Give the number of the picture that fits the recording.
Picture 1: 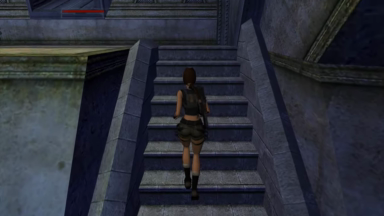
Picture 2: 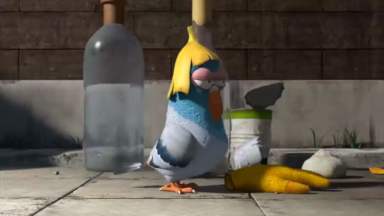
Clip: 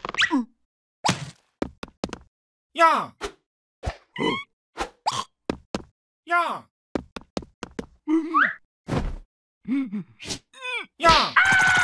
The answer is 2